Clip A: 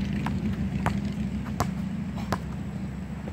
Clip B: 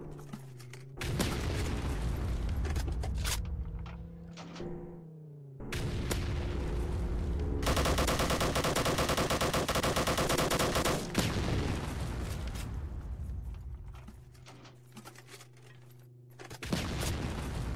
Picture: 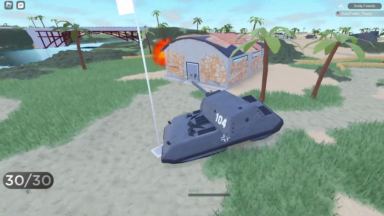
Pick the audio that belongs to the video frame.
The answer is B